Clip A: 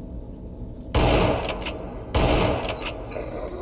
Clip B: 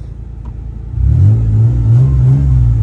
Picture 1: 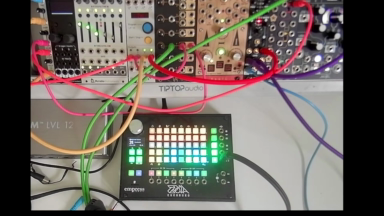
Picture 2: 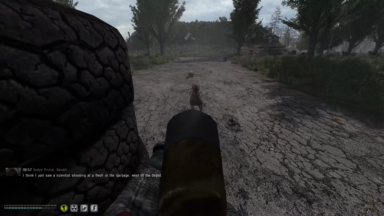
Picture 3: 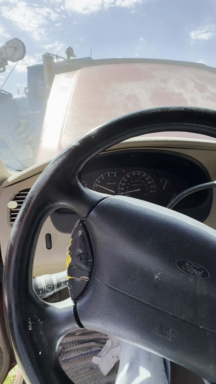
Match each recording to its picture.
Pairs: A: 2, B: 3